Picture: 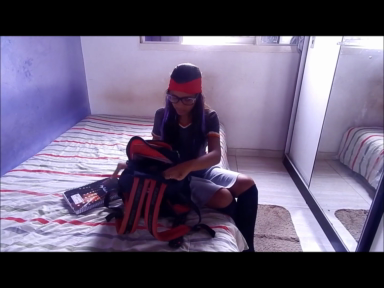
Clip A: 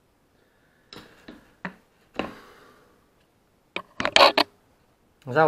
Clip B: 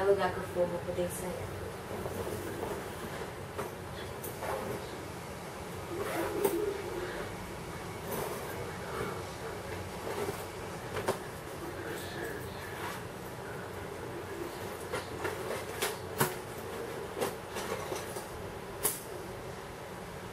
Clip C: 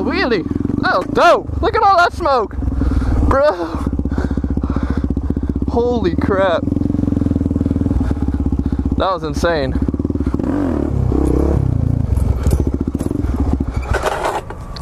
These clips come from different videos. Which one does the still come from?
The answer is B